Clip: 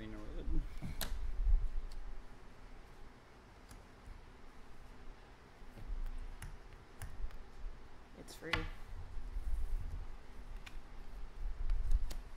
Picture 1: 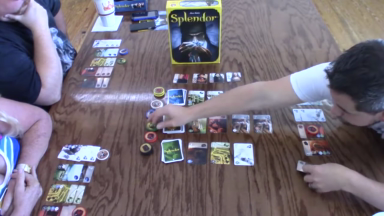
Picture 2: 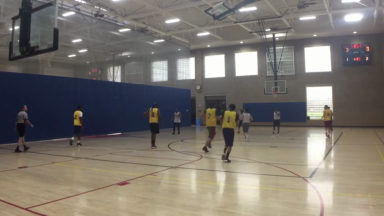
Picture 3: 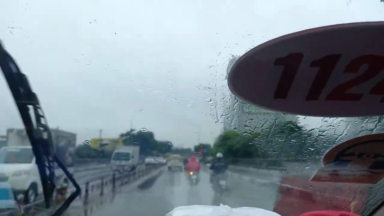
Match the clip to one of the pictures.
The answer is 1